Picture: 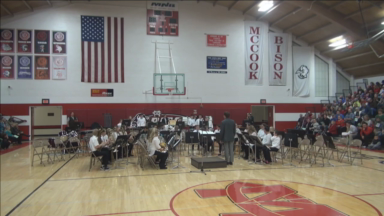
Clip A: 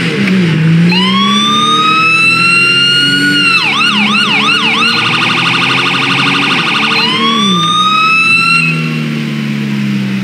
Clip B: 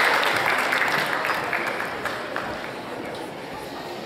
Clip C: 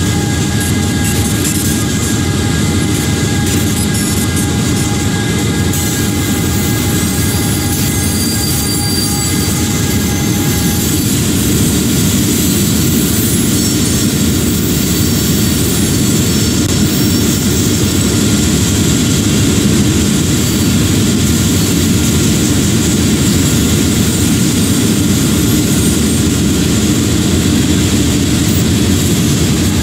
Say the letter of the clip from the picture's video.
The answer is B